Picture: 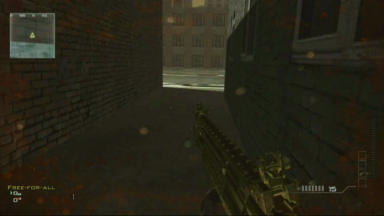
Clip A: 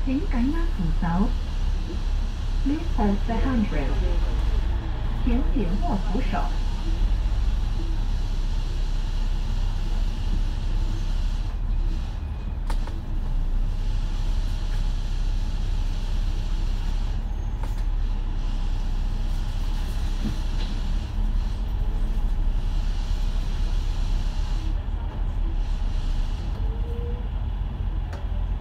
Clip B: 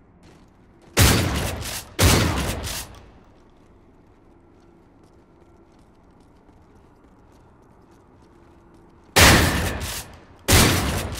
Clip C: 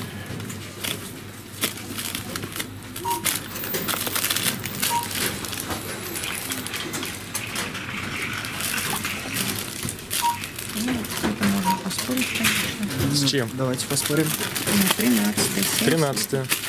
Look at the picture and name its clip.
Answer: B